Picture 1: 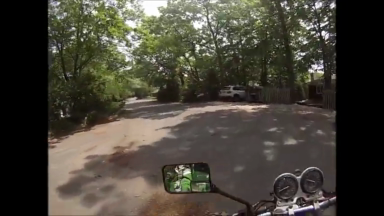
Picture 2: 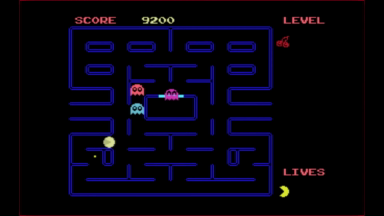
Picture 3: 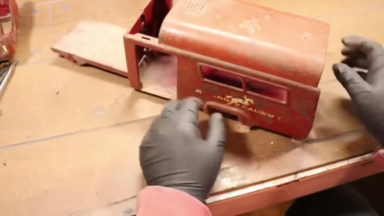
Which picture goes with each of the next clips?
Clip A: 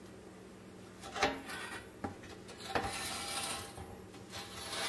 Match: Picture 3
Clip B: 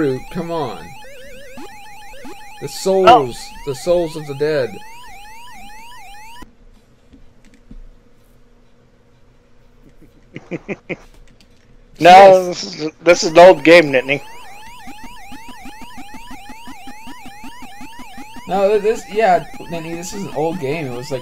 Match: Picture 2